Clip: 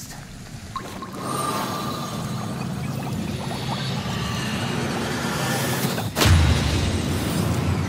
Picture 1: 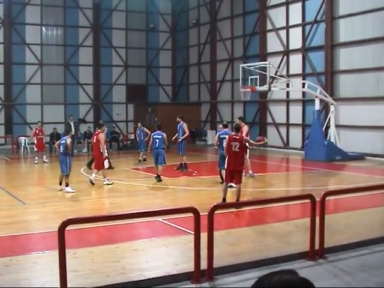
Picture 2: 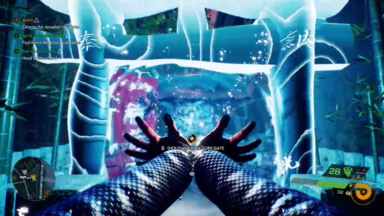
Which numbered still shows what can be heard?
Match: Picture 2